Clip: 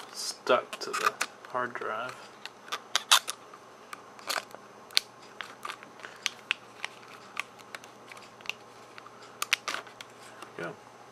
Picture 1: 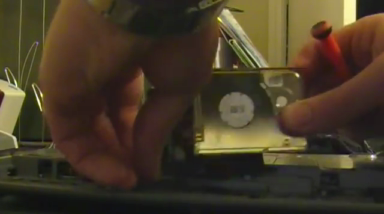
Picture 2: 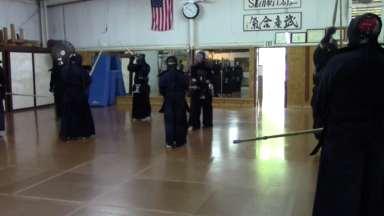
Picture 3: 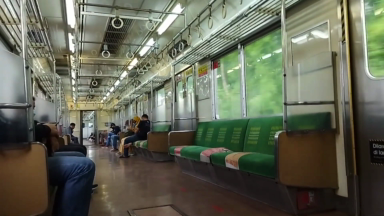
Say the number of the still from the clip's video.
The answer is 1